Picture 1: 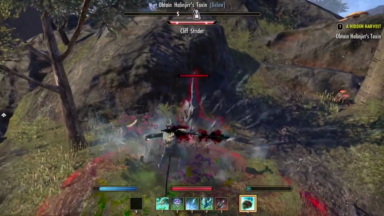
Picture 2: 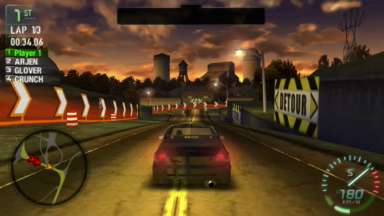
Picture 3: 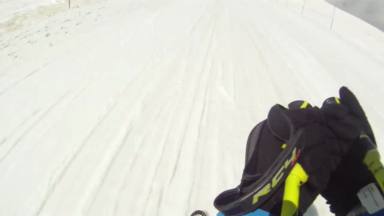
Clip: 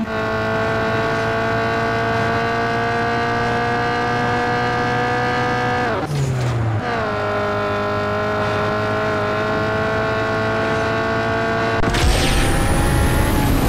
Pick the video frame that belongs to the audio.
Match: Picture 2